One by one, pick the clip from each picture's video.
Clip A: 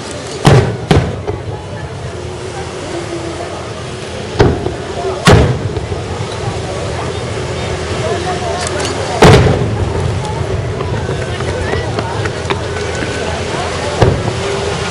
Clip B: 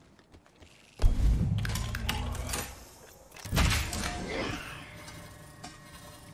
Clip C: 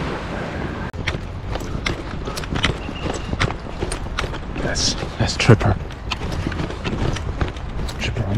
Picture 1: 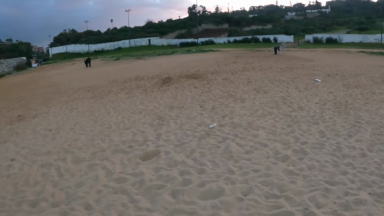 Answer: C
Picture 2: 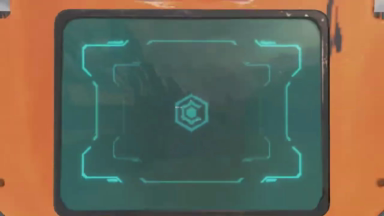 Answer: B